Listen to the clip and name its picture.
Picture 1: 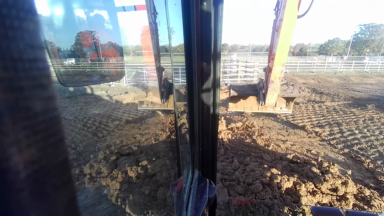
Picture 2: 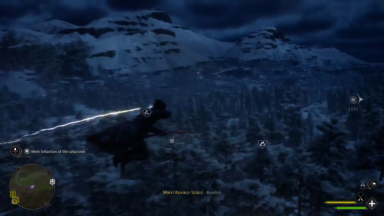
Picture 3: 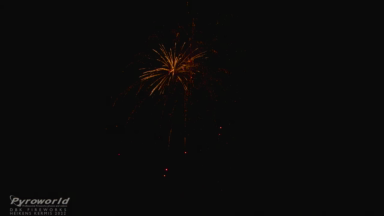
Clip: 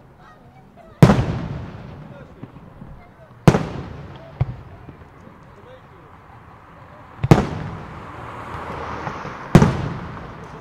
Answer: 3